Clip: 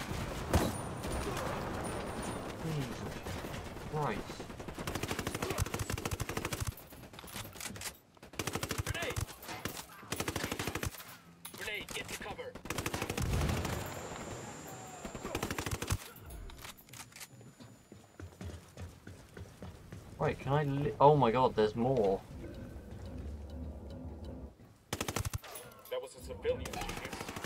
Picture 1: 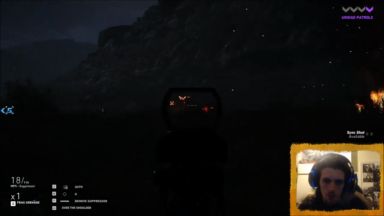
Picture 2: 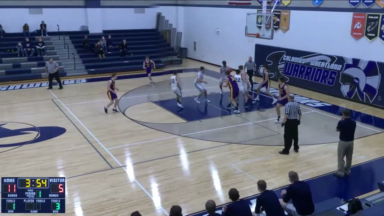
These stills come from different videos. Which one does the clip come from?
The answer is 1